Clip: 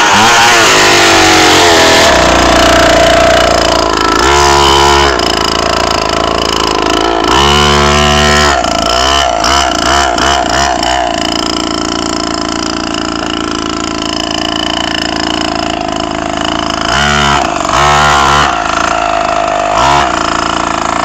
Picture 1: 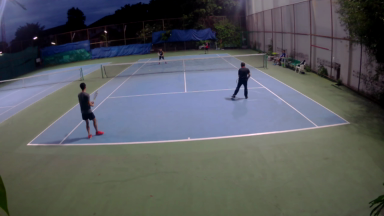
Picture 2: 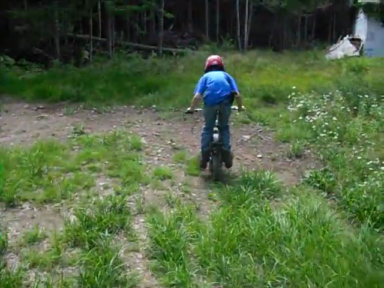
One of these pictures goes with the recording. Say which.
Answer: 2